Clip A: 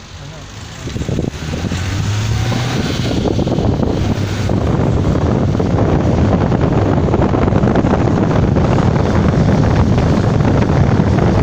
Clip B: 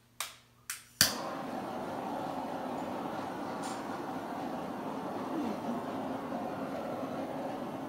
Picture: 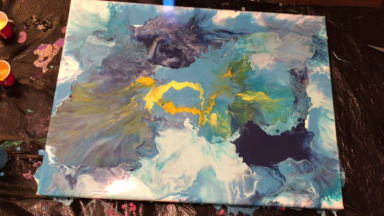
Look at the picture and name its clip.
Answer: B